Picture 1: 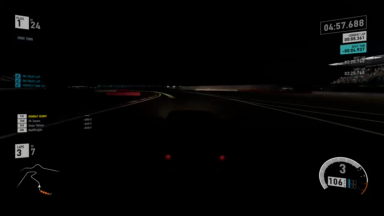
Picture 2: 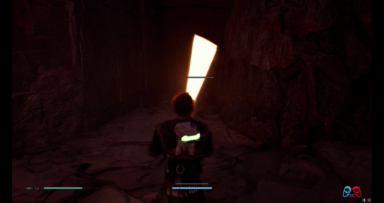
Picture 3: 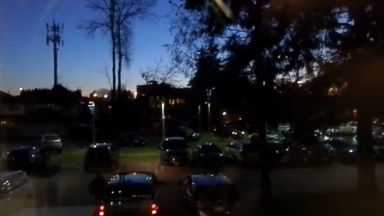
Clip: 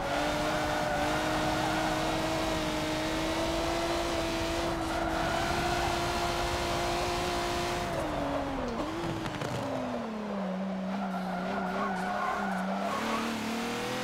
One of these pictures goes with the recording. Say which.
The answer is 1